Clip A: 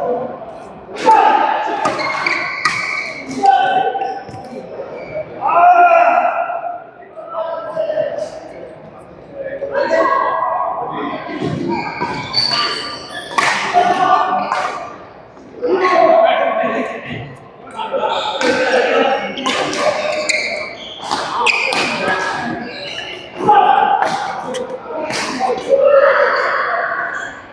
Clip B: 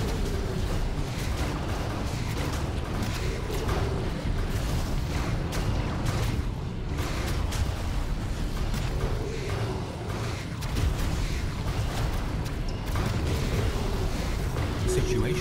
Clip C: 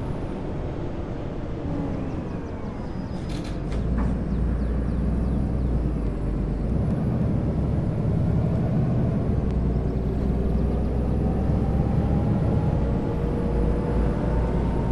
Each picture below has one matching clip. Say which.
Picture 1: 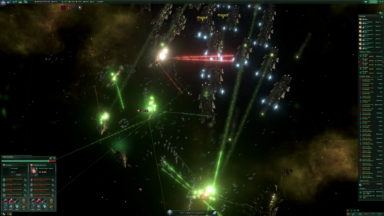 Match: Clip B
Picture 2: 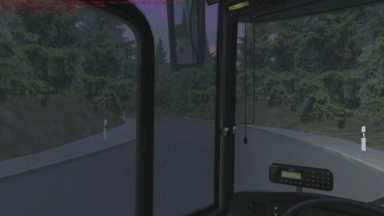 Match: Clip C